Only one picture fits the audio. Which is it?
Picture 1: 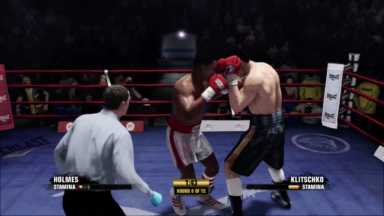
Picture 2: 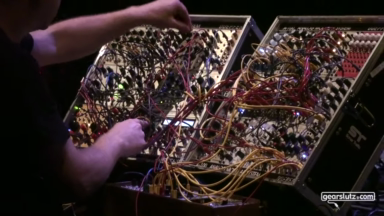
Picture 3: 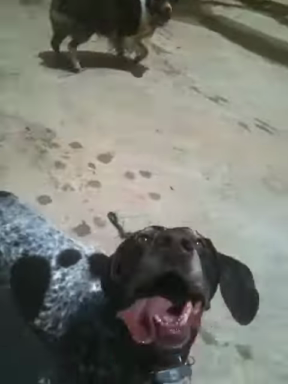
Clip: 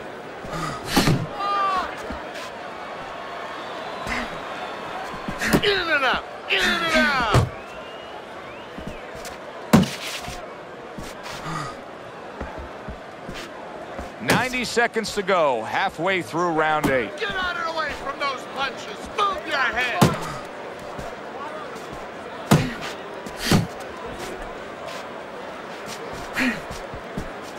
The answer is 1